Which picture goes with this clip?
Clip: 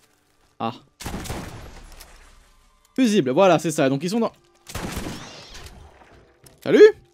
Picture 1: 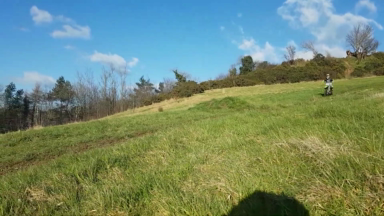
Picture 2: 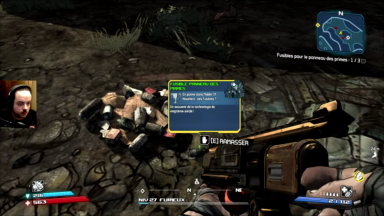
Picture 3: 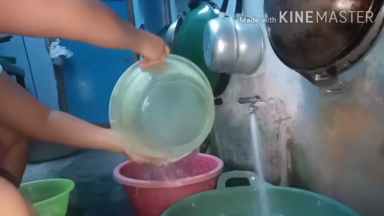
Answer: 2